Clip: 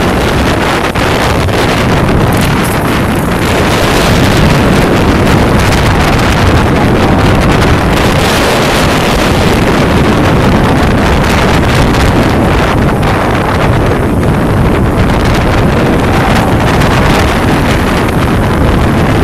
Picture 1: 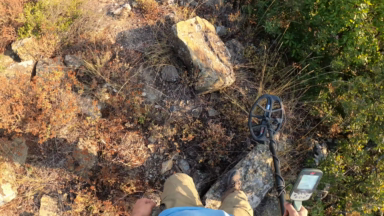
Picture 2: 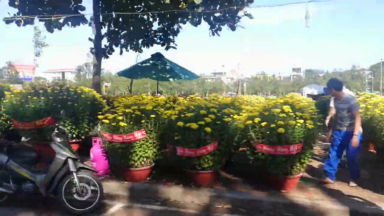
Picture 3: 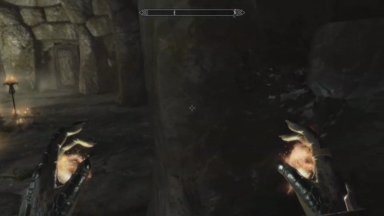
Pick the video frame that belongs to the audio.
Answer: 2